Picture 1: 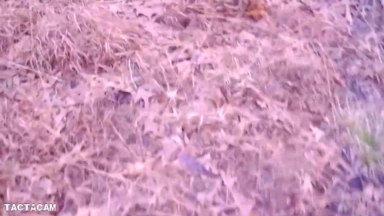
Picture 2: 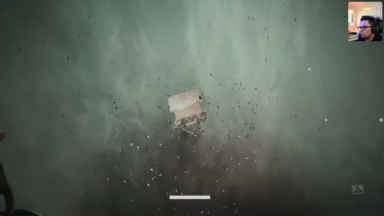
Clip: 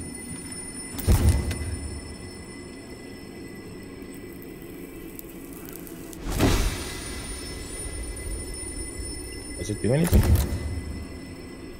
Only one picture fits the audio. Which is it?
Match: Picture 2